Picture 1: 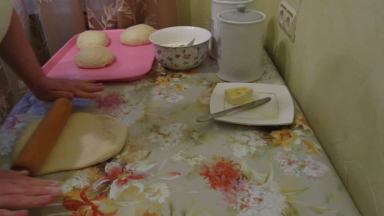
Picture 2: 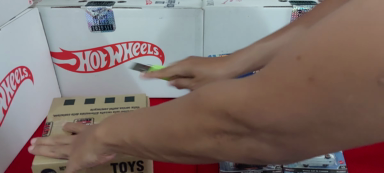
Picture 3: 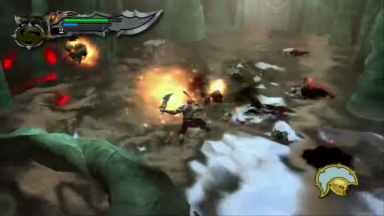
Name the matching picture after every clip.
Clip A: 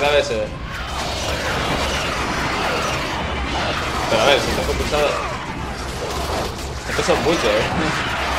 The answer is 3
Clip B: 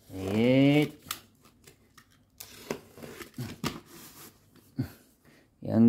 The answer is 2